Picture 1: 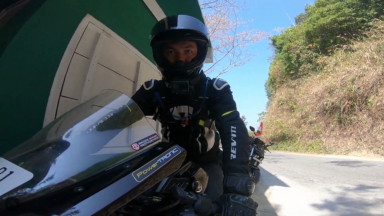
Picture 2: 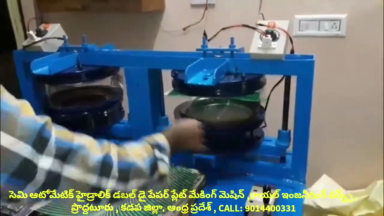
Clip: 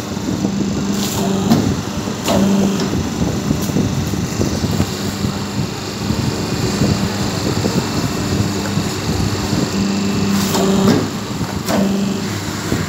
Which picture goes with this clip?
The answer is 2